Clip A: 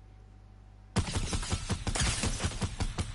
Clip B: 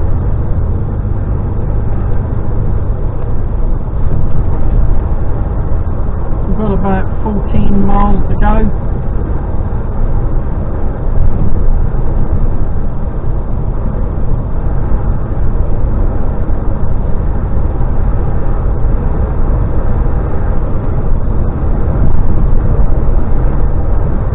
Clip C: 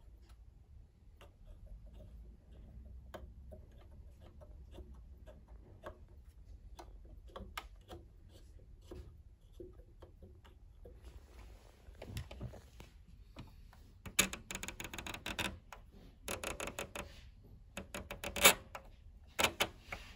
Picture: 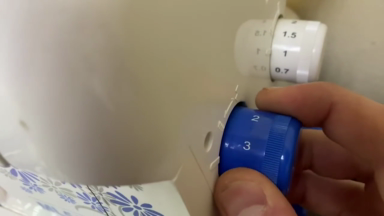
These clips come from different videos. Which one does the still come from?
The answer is C